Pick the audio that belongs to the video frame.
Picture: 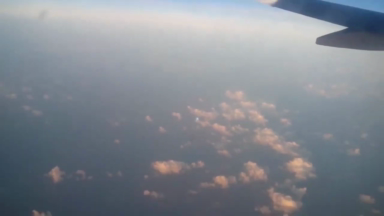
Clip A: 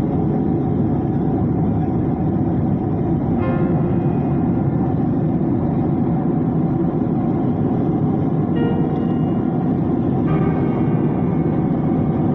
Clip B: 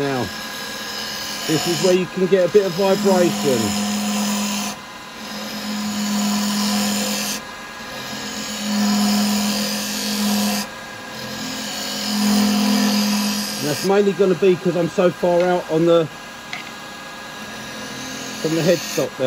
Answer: A